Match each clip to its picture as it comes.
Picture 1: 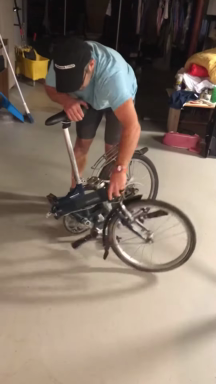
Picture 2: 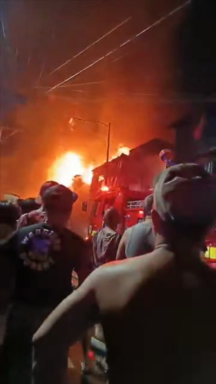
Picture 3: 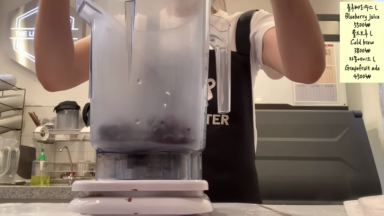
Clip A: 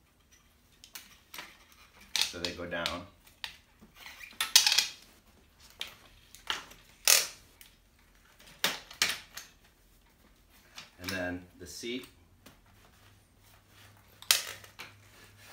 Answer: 1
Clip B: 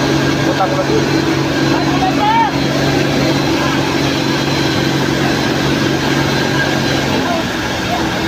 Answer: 2